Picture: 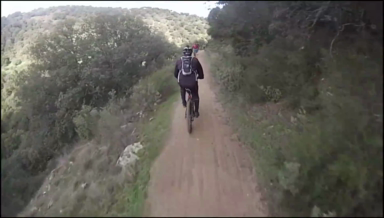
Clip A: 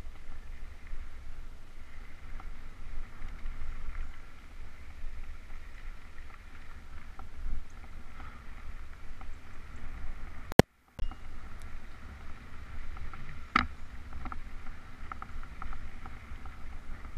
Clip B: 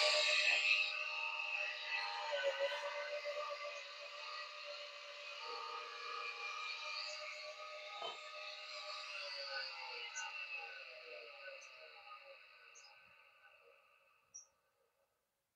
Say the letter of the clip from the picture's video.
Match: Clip A